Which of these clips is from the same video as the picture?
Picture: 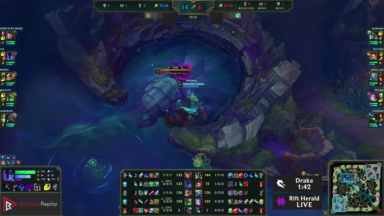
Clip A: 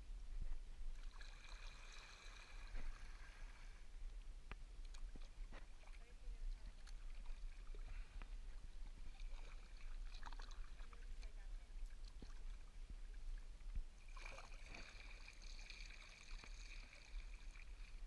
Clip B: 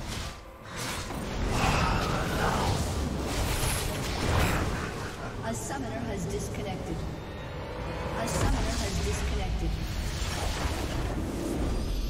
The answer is B